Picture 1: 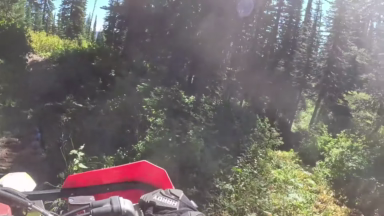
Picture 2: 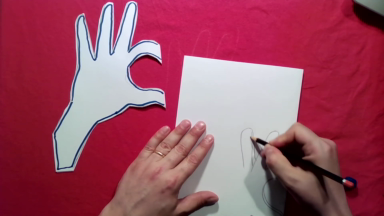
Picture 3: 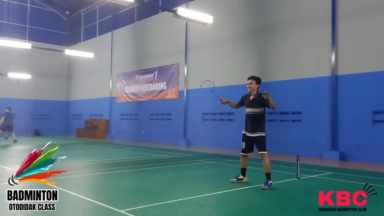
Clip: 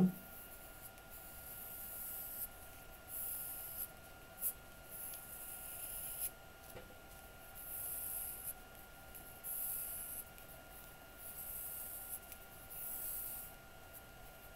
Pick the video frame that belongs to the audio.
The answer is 2